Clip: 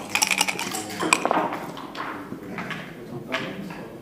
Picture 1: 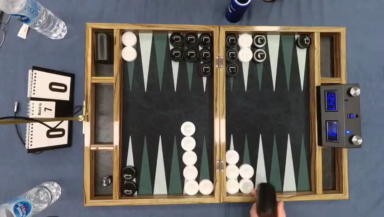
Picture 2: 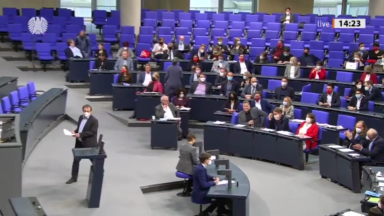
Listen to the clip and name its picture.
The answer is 1